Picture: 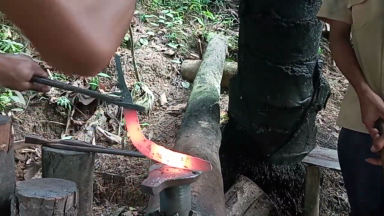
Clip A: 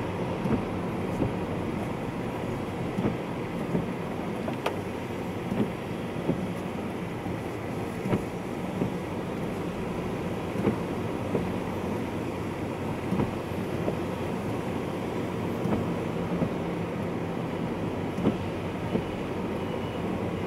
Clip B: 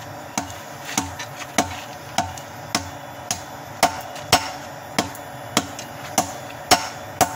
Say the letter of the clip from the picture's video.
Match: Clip B